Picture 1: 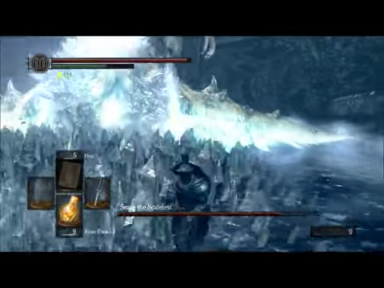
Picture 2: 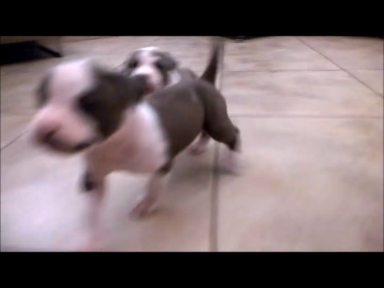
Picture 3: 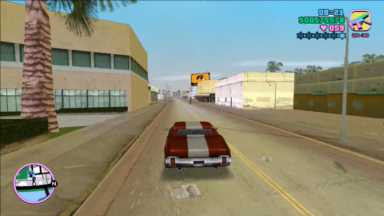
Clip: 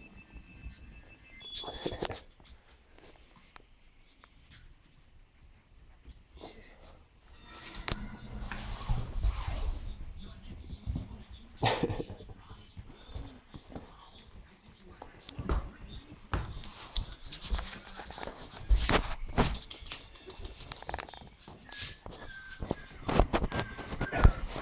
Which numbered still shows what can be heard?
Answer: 2